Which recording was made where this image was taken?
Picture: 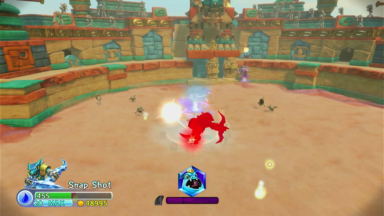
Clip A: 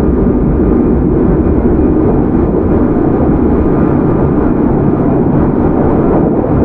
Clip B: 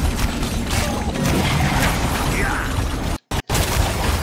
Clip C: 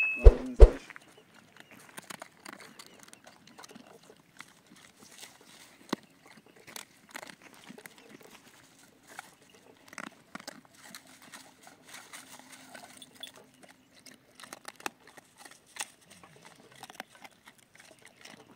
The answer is B